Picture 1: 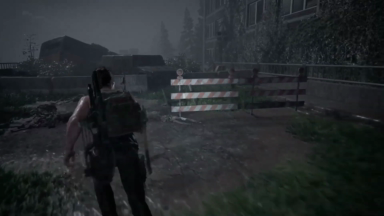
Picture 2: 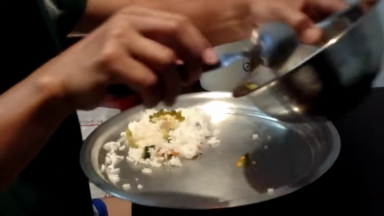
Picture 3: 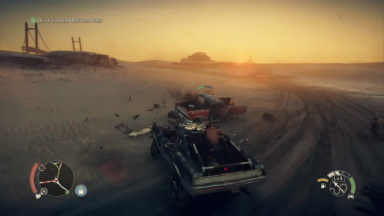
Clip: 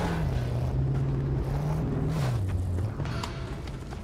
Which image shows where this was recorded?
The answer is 3